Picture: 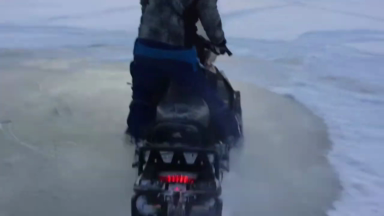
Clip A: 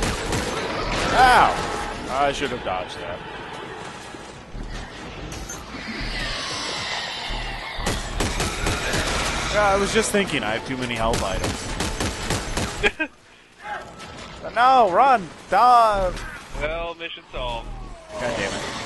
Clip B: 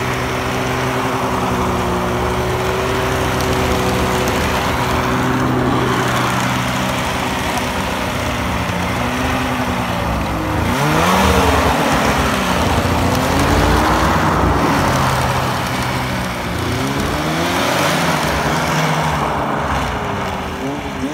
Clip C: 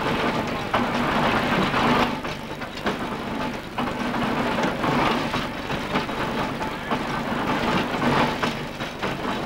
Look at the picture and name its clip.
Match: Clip B